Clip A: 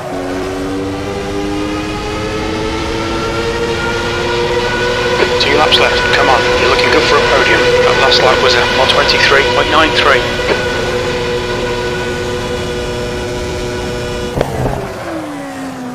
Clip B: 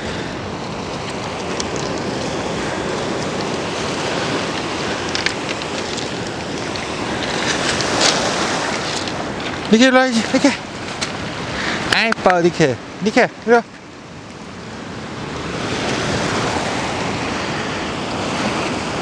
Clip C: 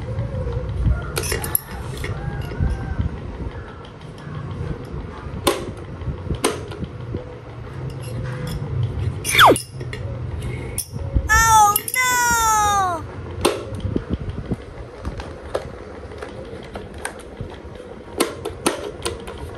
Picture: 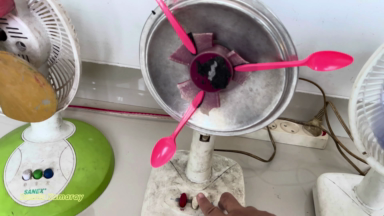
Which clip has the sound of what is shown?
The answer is C